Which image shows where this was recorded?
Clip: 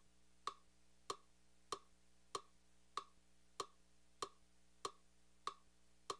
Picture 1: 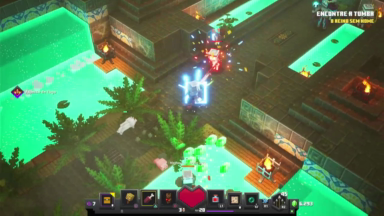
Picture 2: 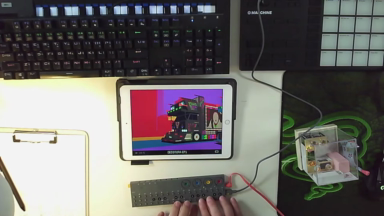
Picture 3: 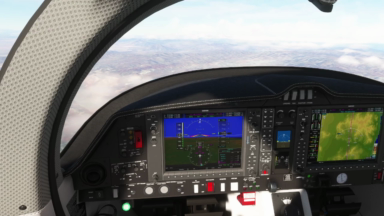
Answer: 2